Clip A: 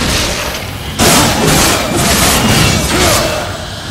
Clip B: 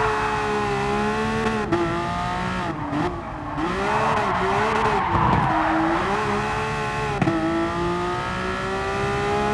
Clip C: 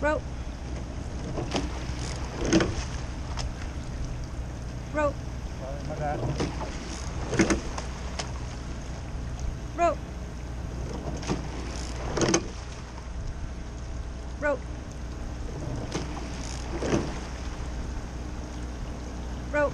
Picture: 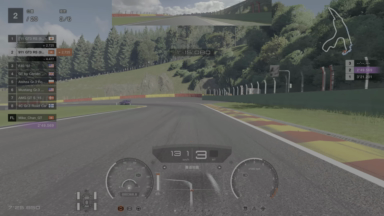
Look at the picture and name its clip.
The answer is B